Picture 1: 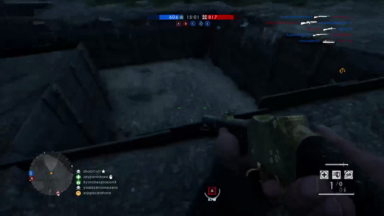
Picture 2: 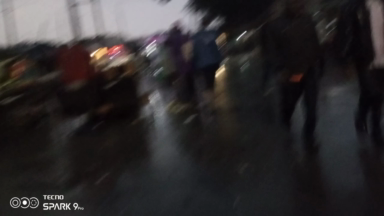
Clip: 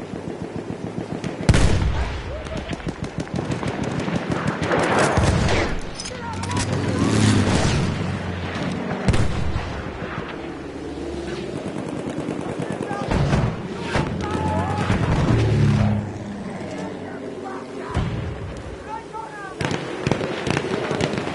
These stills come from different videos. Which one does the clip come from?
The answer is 1